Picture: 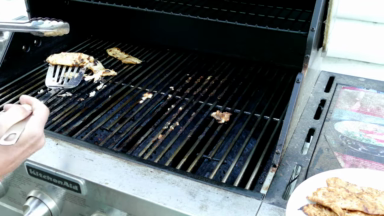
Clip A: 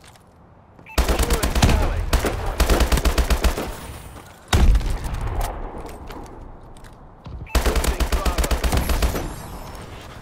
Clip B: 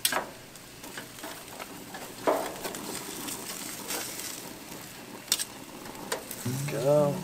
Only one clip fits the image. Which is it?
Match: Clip B